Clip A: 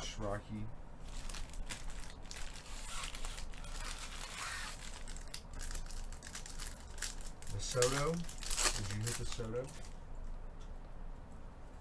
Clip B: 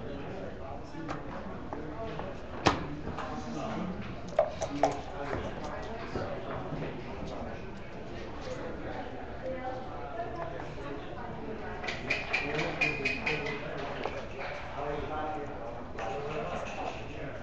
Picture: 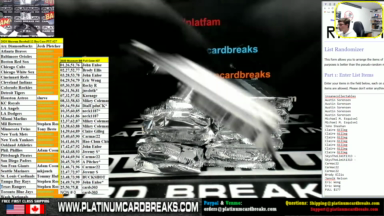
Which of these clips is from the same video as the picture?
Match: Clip A